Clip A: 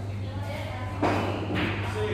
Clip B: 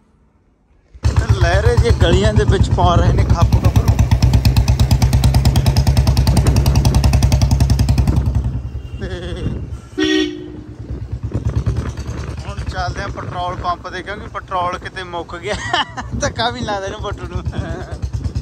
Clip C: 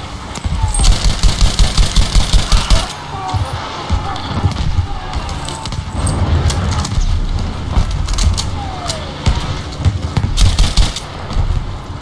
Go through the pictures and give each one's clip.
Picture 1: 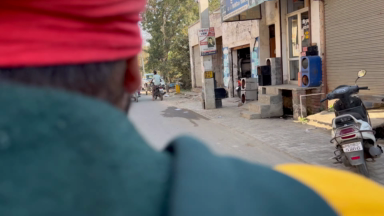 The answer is B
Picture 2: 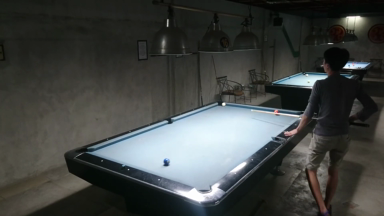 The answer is A